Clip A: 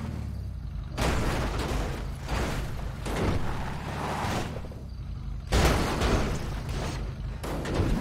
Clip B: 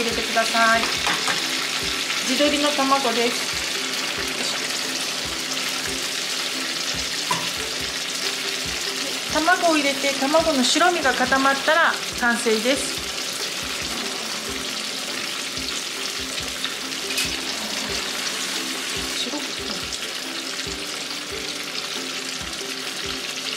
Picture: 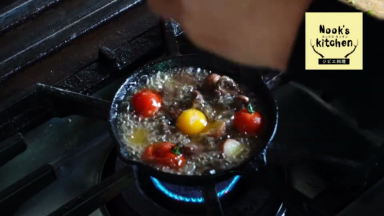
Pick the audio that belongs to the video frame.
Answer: B